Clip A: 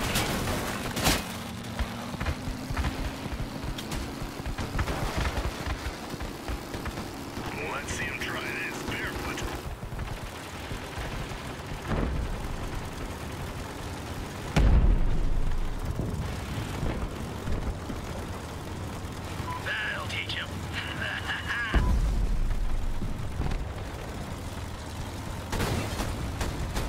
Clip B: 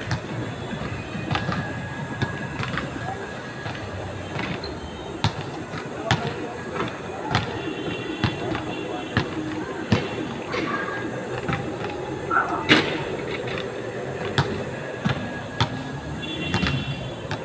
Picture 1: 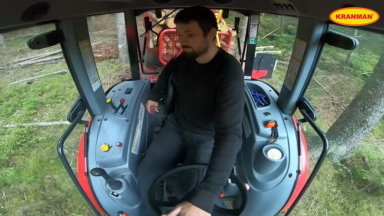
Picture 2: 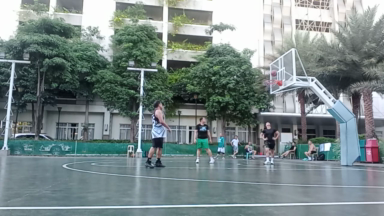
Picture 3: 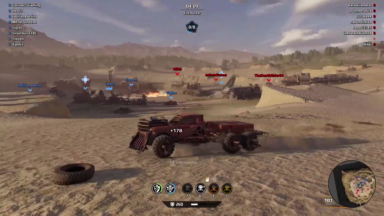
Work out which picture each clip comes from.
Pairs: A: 3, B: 2